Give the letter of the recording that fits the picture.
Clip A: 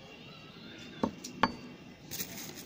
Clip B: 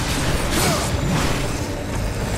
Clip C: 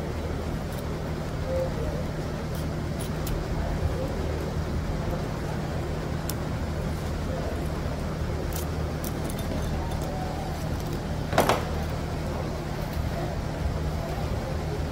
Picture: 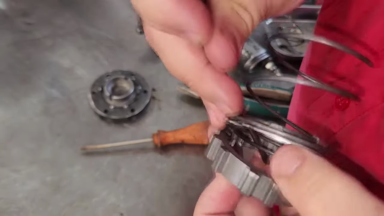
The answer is C